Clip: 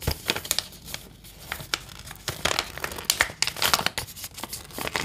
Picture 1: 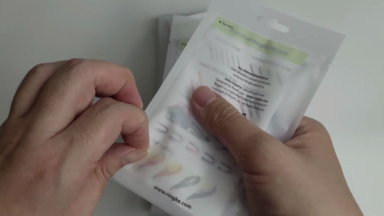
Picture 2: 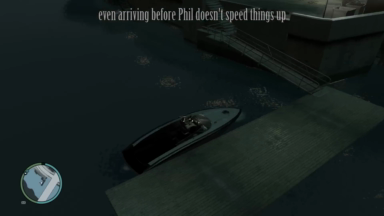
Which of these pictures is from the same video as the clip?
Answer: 1